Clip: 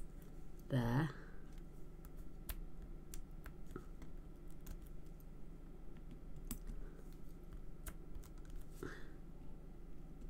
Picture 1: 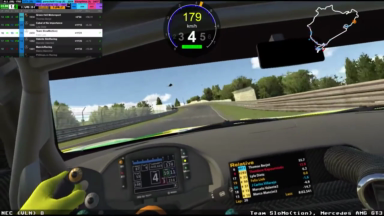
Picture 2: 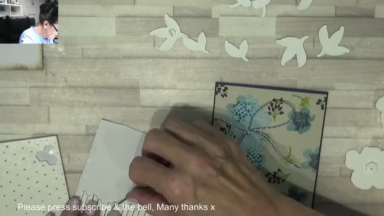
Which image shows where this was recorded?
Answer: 2